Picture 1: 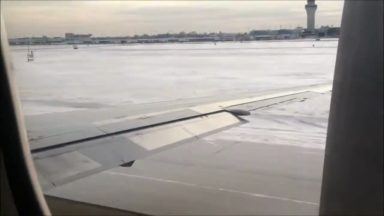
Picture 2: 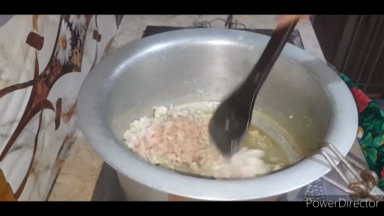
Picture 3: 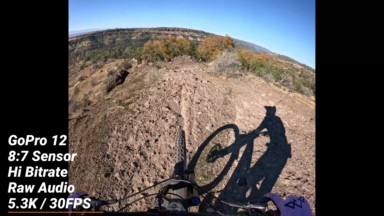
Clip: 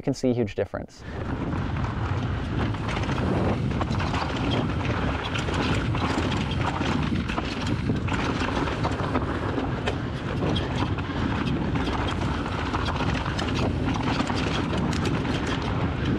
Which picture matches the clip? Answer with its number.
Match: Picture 3